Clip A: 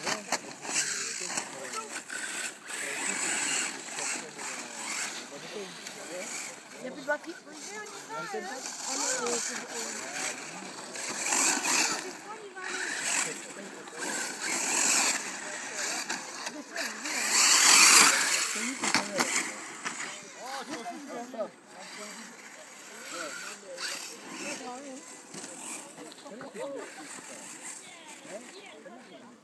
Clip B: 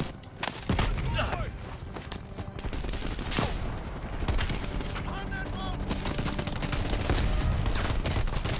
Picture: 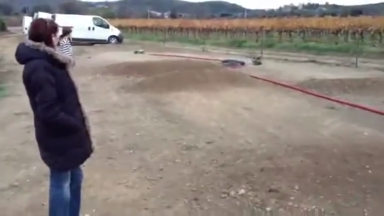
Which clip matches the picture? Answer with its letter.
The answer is A